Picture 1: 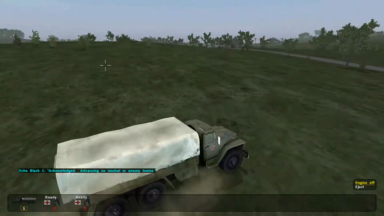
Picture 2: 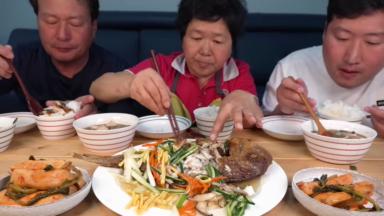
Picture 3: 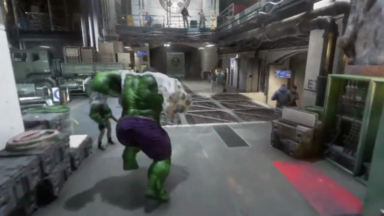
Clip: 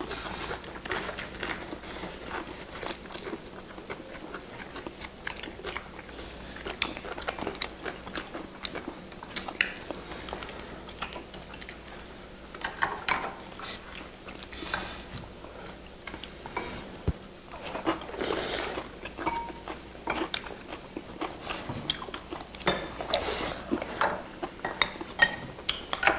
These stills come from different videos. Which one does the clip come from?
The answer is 2